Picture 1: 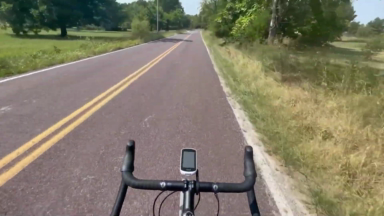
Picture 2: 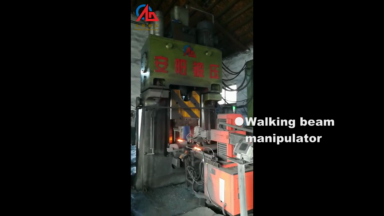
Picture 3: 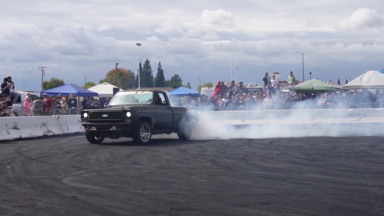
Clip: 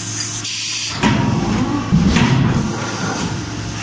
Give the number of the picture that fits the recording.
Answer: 2